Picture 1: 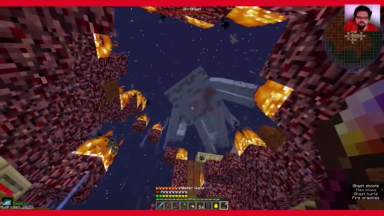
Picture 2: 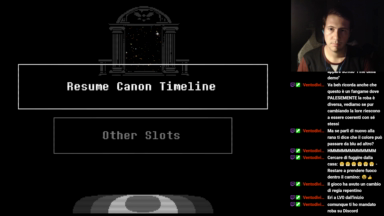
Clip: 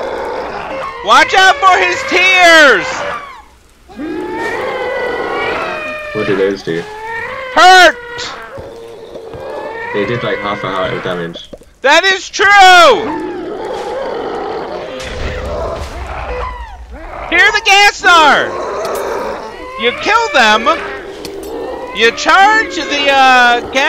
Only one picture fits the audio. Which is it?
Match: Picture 1